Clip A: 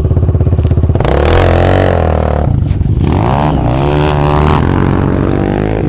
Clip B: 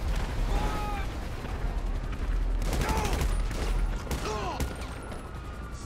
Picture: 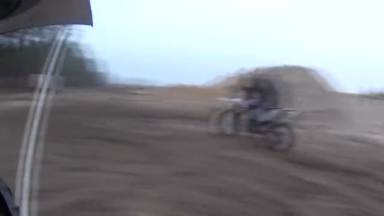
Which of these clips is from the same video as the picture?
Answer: A